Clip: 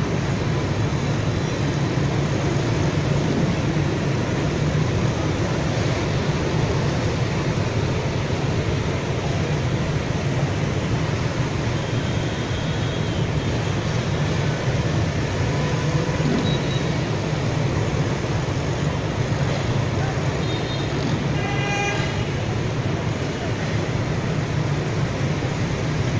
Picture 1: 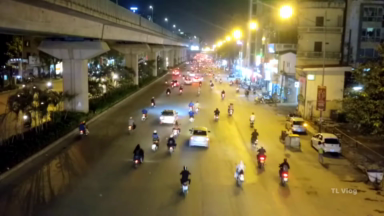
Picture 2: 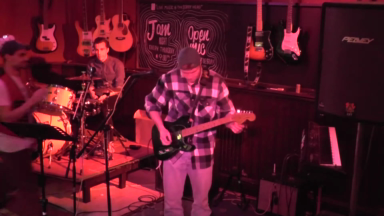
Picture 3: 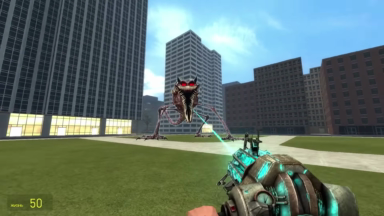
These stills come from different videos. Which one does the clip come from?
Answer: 1